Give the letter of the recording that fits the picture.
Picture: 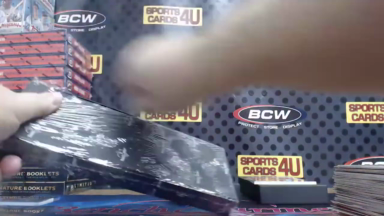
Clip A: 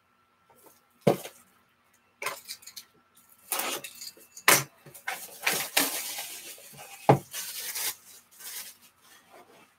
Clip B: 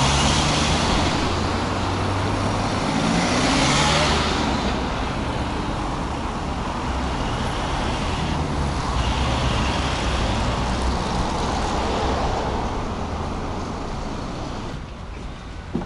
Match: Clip A